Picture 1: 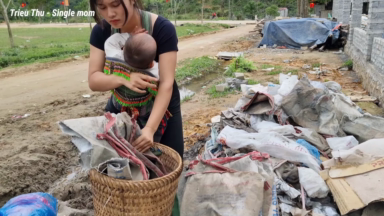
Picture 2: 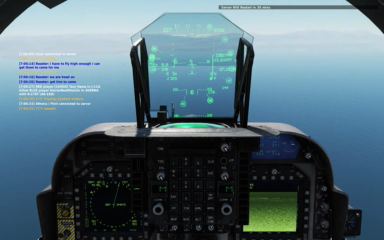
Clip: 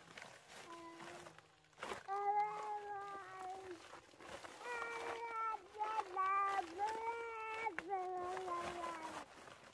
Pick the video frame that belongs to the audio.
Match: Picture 1